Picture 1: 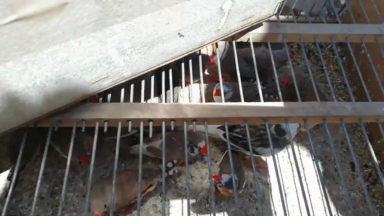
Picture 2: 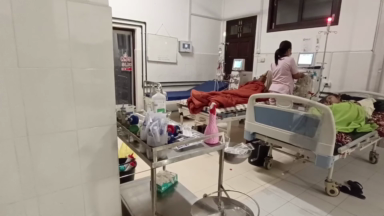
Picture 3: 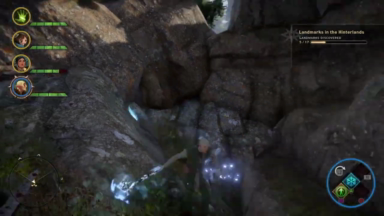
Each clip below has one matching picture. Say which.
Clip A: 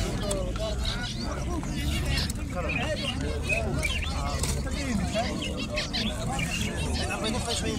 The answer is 1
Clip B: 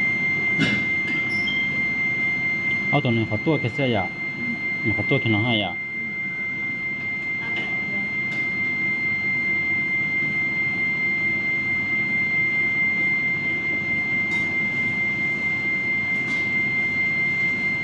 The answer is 2